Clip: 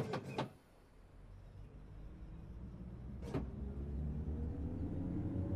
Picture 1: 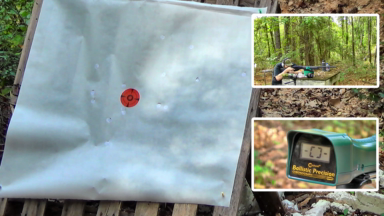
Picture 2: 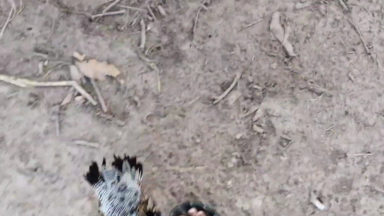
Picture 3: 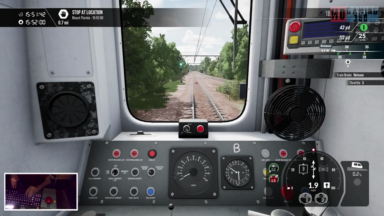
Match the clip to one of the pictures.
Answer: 3